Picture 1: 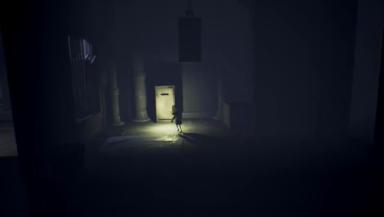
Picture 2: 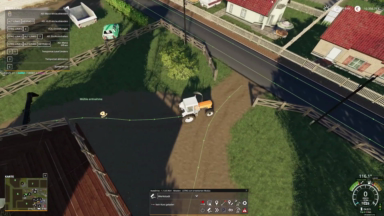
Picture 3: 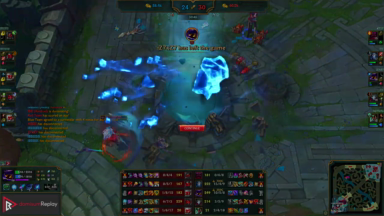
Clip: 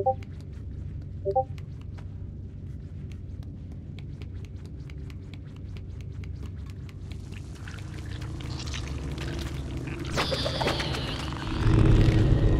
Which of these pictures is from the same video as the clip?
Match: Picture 1